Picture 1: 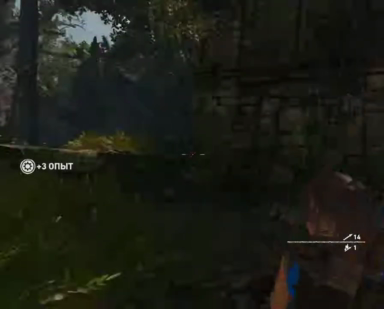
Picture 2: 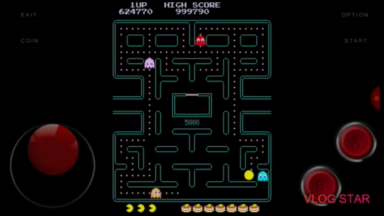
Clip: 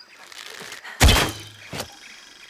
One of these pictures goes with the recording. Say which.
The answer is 1